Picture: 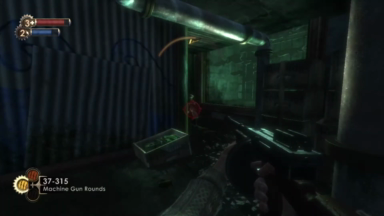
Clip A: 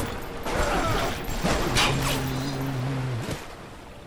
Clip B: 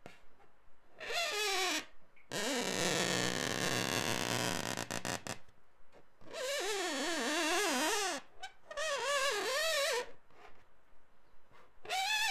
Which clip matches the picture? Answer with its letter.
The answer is A